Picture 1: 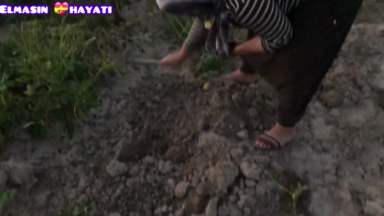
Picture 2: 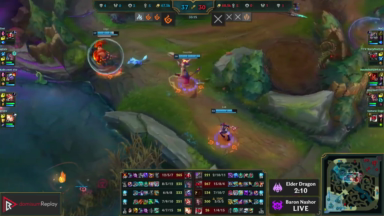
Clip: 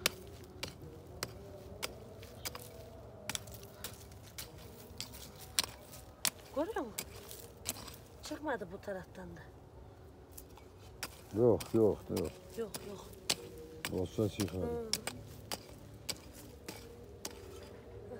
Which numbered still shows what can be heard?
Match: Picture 1